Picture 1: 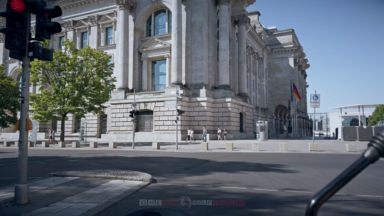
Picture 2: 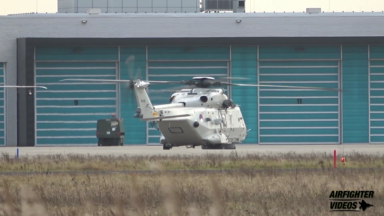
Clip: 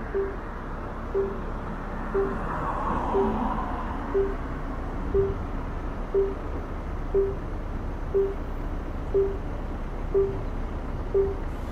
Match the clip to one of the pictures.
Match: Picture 1